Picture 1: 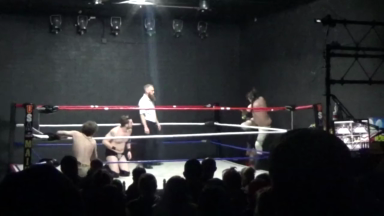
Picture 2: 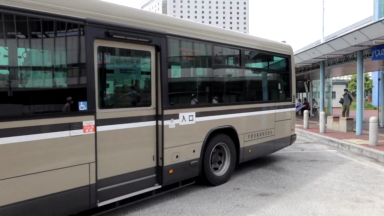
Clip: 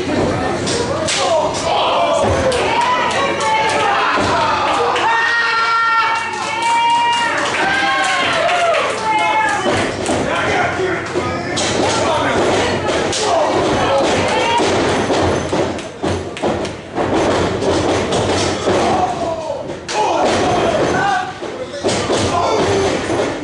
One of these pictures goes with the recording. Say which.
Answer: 1